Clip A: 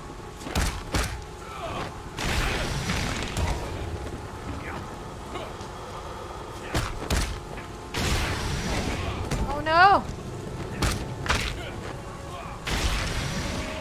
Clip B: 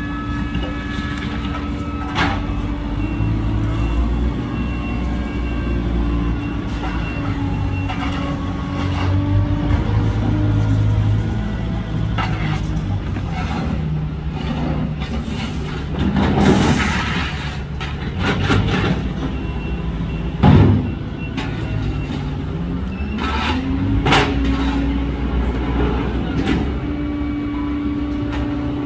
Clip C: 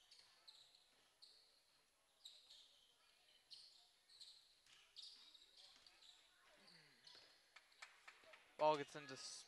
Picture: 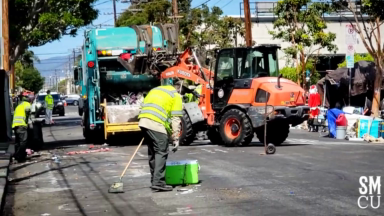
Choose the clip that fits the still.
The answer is B